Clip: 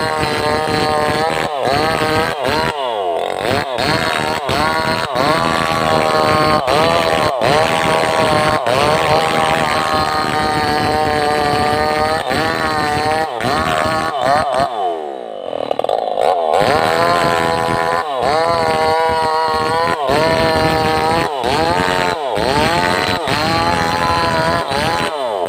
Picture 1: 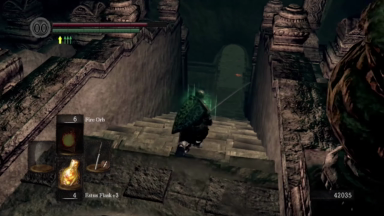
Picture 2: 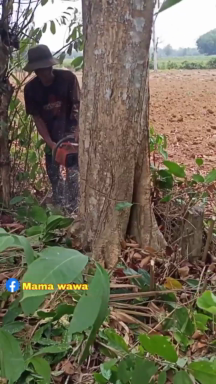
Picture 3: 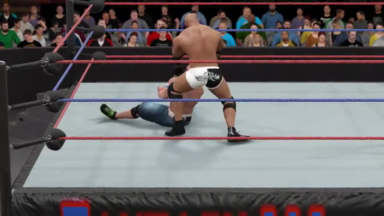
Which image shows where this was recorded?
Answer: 2